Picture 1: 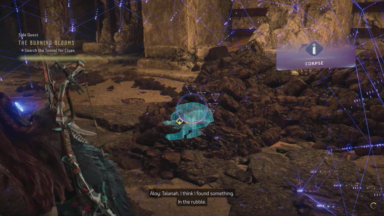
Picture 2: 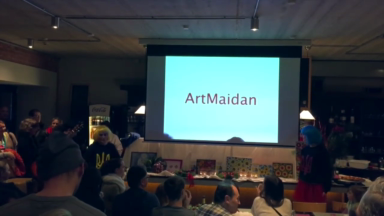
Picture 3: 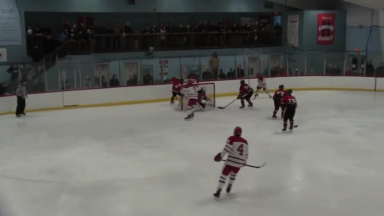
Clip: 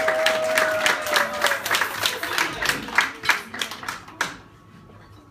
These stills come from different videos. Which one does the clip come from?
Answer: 2